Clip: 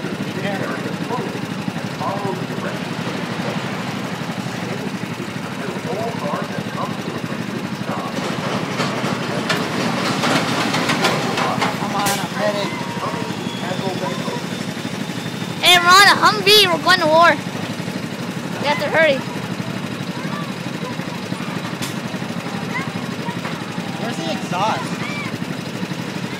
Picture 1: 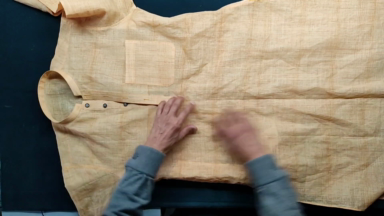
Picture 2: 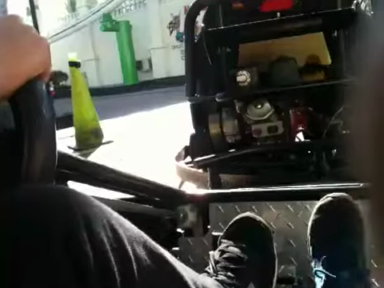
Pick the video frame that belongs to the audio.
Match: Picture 2